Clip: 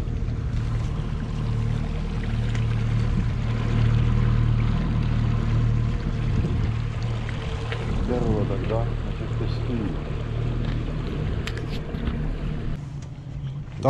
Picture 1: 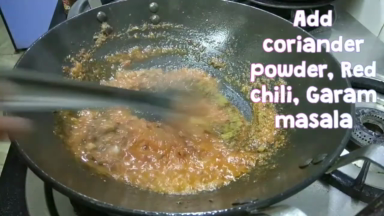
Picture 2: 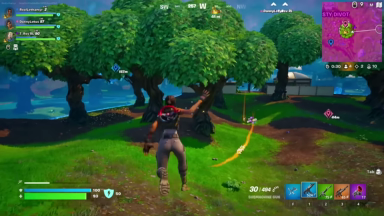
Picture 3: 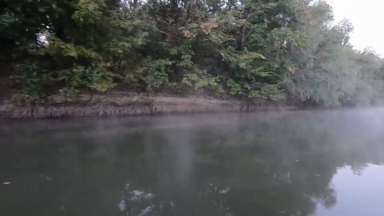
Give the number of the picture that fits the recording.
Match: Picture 3